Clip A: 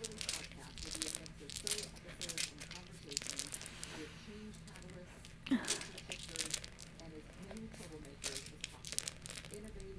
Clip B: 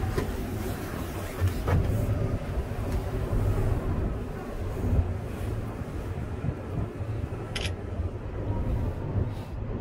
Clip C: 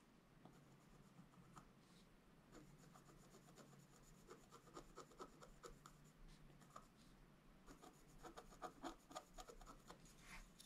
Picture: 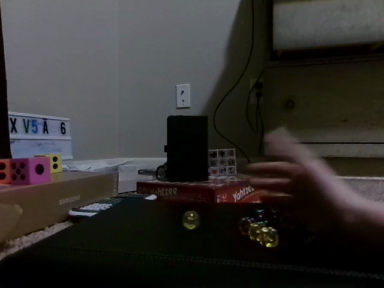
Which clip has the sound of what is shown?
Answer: A